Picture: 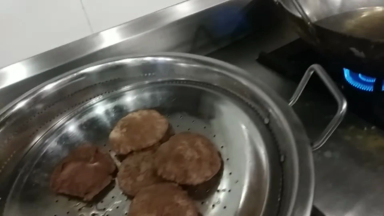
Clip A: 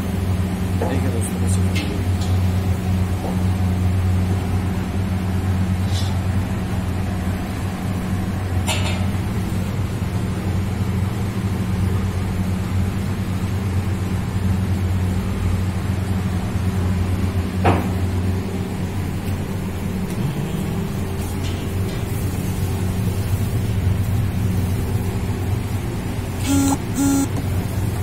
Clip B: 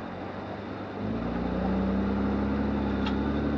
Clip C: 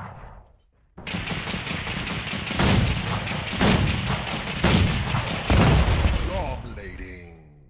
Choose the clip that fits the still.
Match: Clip A